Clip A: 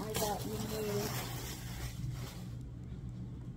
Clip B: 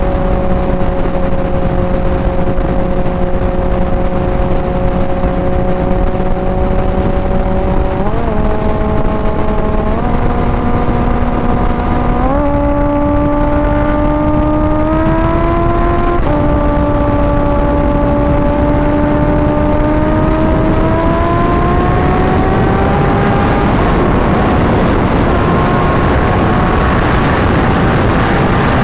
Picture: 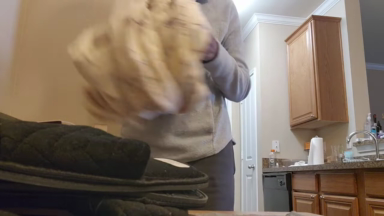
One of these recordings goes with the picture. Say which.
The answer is A